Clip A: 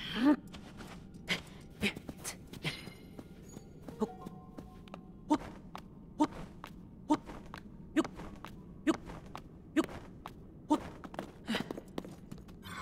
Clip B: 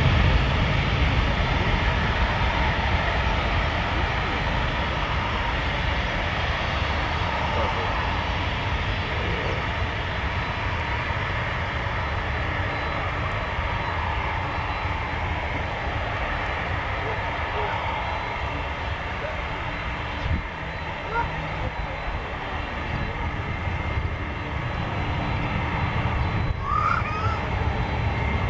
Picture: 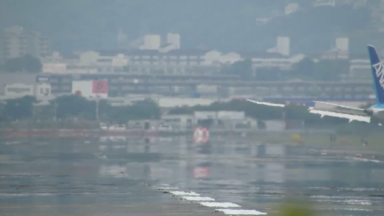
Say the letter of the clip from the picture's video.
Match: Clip B